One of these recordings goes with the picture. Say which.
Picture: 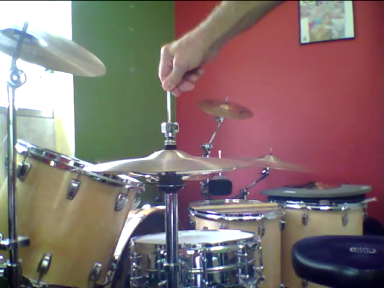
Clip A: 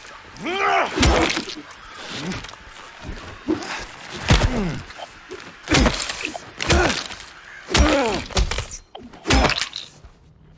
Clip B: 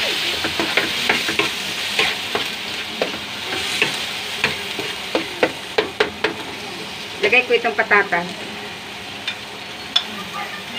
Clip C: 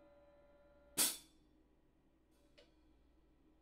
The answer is C